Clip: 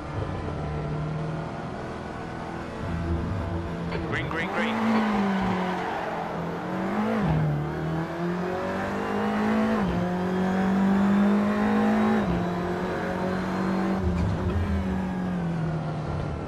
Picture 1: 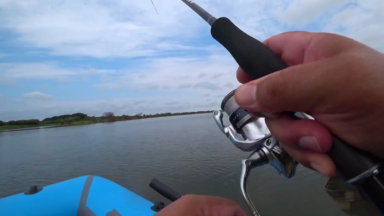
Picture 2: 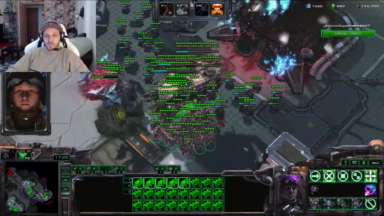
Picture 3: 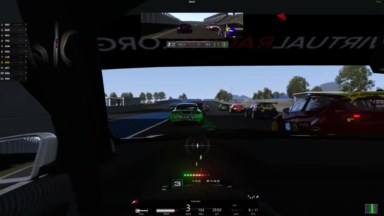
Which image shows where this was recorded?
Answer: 3